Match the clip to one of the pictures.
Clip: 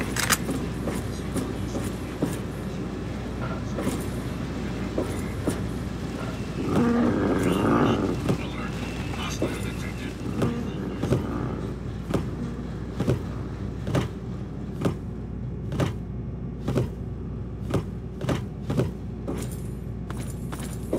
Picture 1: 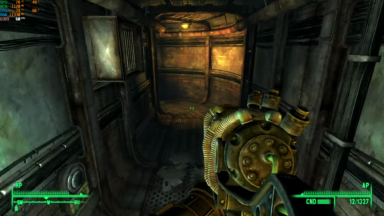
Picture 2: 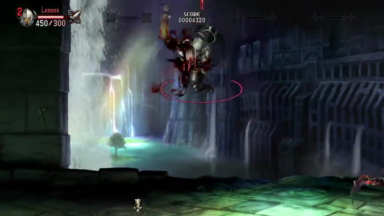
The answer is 1